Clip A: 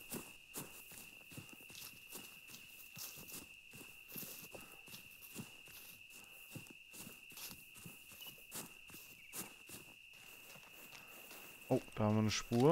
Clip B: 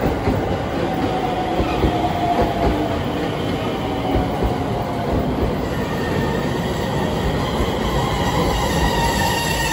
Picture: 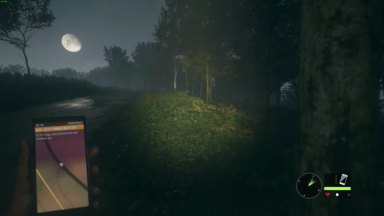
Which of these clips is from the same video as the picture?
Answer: A